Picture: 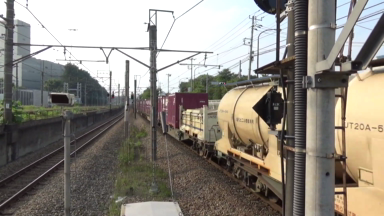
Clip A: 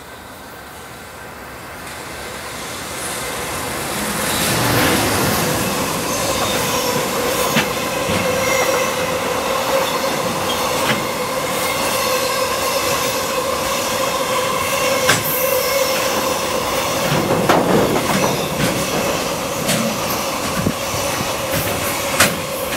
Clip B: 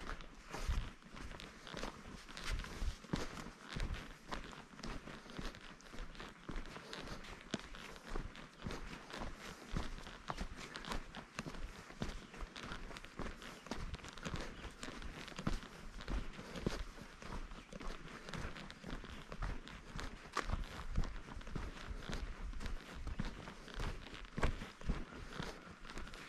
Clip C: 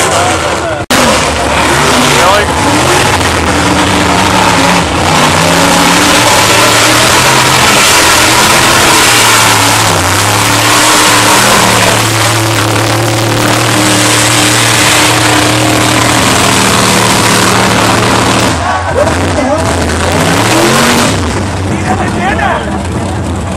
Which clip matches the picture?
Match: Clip A